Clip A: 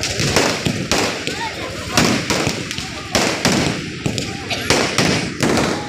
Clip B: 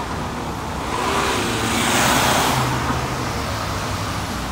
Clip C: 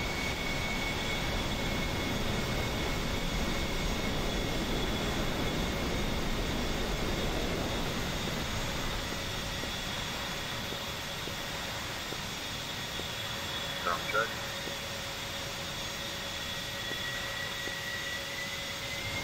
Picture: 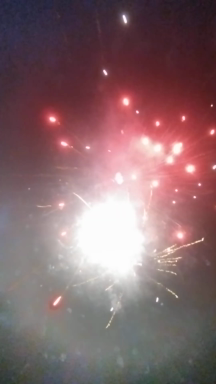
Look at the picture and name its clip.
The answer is A